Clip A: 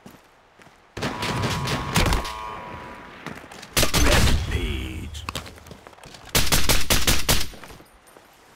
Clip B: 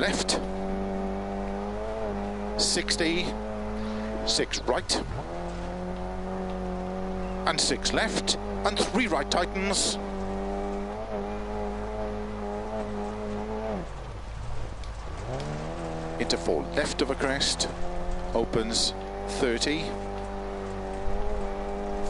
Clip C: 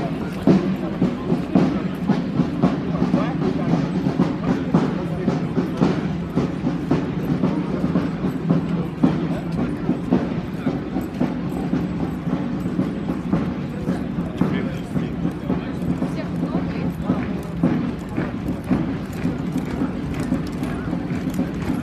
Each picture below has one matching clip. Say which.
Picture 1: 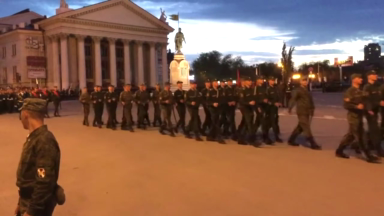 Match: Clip C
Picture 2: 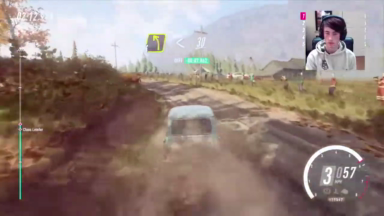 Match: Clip B